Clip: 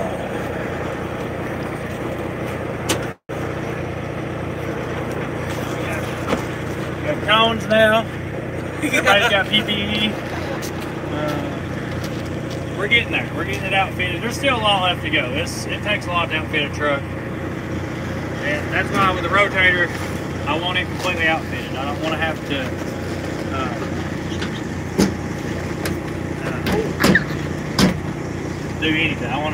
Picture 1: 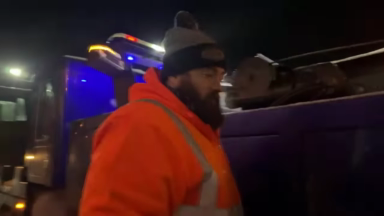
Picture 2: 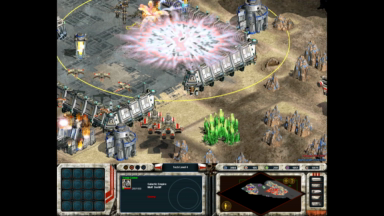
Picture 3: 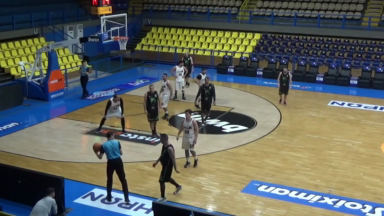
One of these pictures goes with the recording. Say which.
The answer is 1